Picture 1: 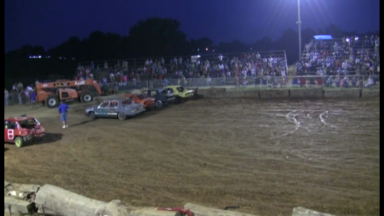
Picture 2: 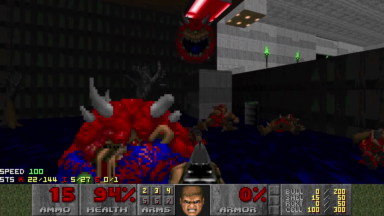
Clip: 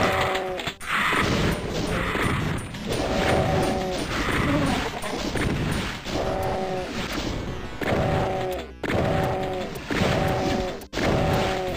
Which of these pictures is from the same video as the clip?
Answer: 2